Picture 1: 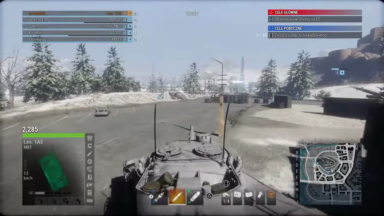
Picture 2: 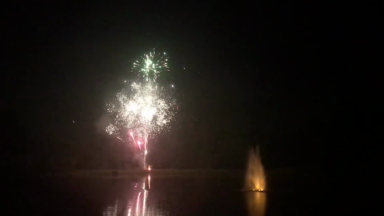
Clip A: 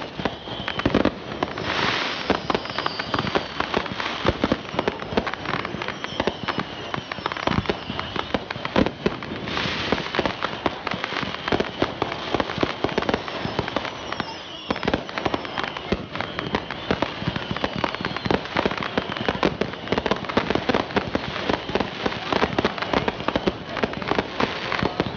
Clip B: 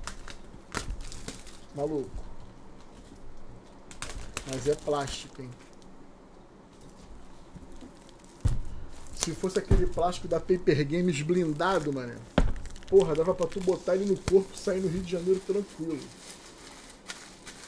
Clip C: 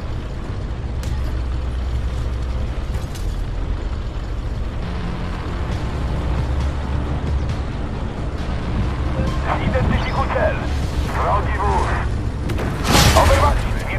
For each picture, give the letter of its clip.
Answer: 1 C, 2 A